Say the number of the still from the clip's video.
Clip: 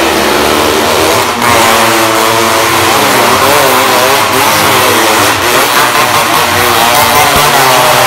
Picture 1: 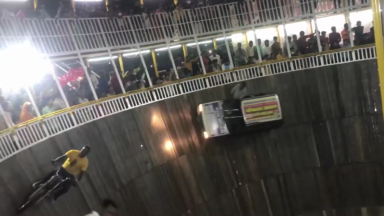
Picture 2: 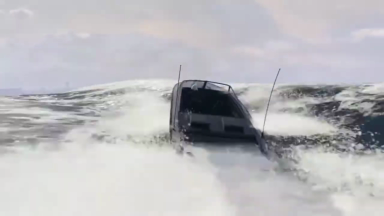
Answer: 1